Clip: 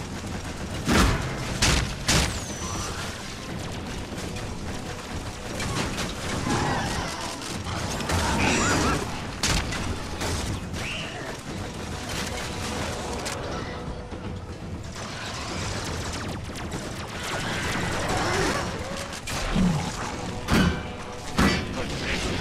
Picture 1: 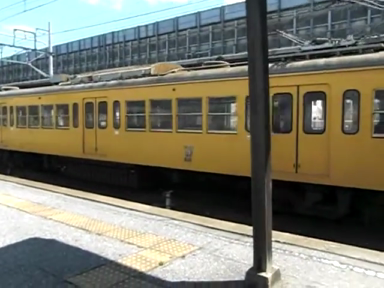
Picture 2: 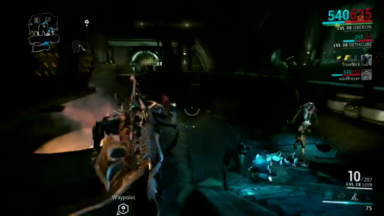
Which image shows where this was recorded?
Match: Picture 2